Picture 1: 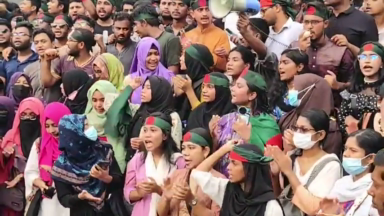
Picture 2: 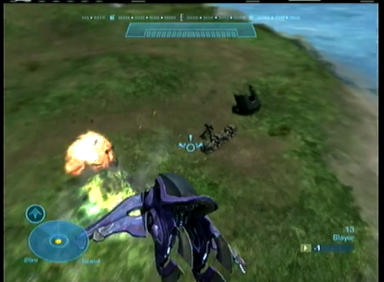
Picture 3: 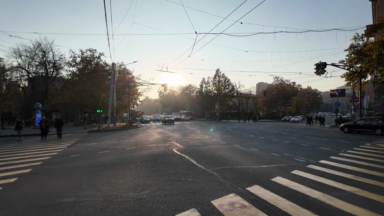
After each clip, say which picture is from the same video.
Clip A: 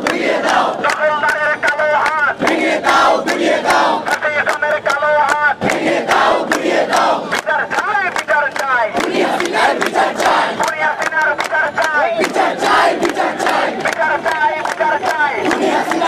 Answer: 1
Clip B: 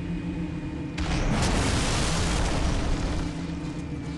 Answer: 2